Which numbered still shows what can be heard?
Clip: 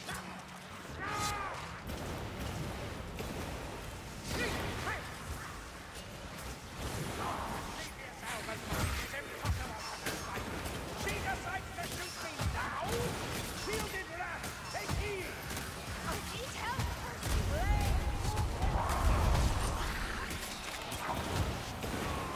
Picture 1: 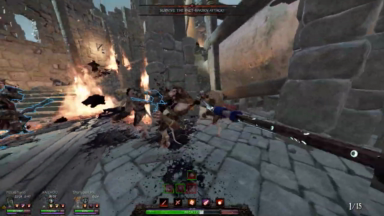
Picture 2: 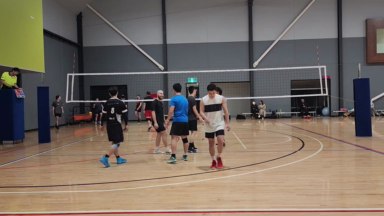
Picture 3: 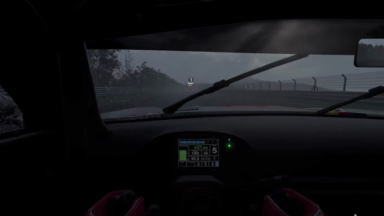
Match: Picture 1